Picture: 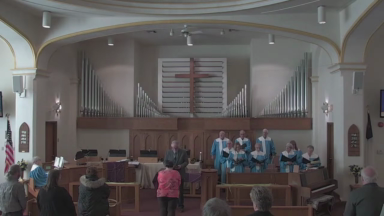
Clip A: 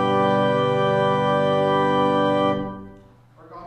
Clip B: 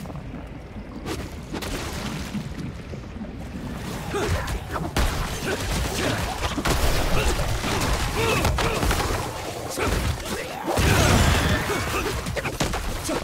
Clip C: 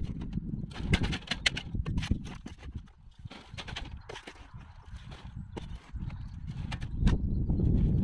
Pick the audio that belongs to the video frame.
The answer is A